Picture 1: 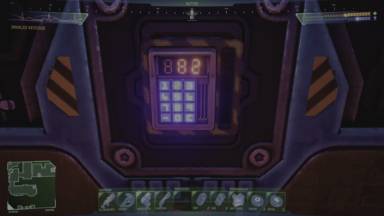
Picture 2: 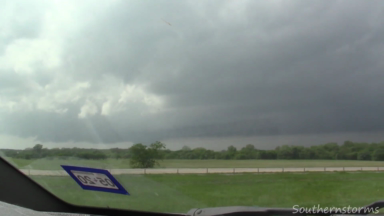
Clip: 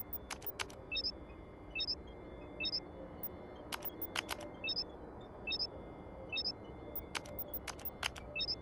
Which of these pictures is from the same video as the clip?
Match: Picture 1